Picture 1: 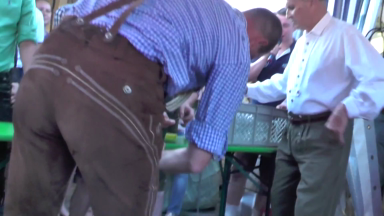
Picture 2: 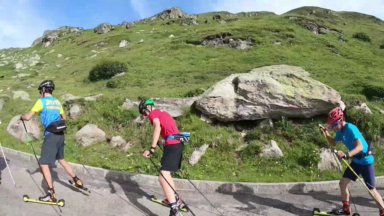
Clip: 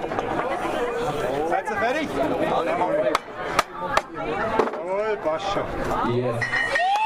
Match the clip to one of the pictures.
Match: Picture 1